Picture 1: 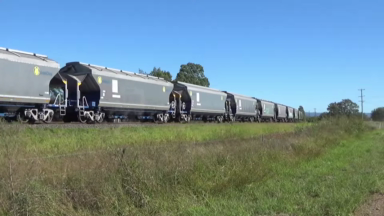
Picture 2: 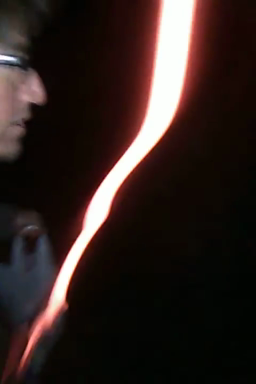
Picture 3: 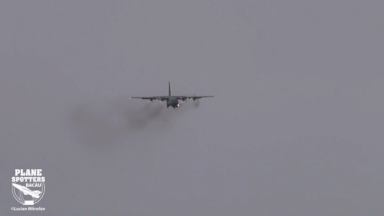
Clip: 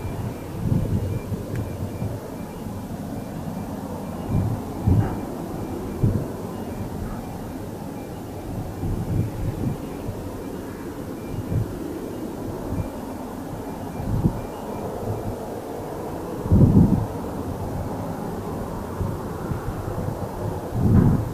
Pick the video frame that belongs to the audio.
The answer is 3